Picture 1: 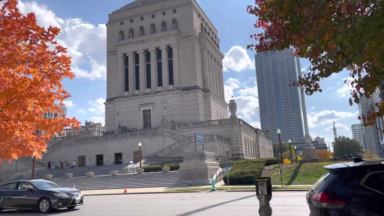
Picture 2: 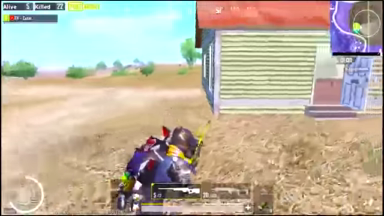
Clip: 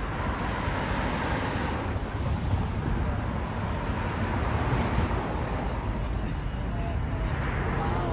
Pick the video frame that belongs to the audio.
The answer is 1